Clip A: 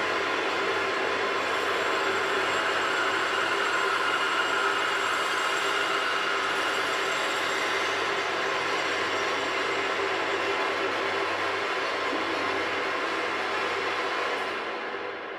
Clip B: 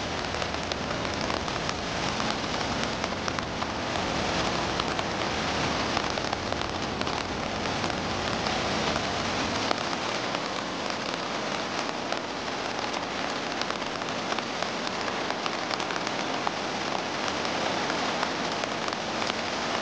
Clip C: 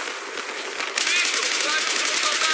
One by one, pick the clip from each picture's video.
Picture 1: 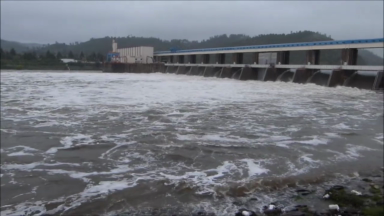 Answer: B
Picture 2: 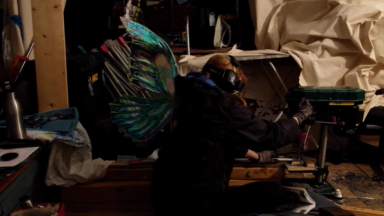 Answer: A